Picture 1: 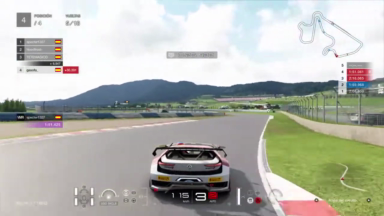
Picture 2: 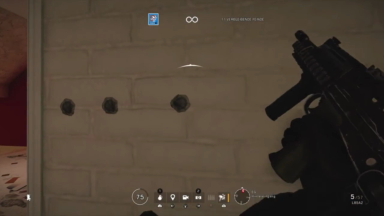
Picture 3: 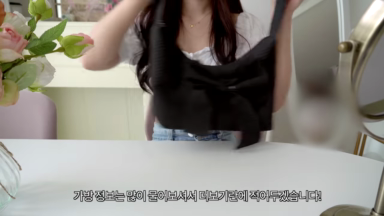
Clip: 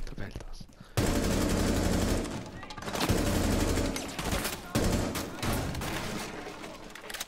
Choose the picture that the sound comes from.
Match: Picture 2